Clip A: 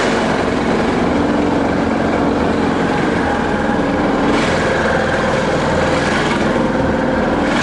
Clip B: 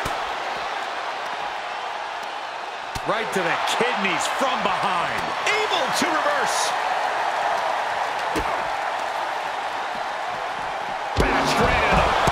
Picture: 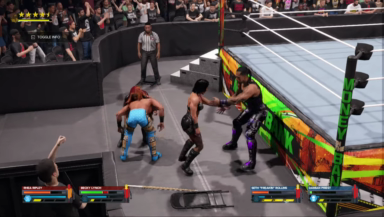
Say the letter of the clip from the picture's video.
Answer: B